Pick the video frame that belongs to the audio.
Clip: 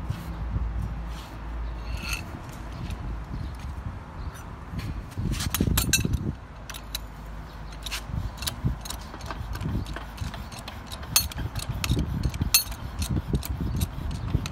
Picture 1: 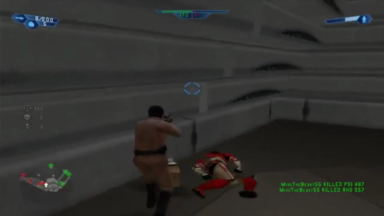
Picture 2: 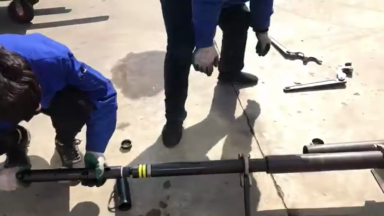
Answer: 2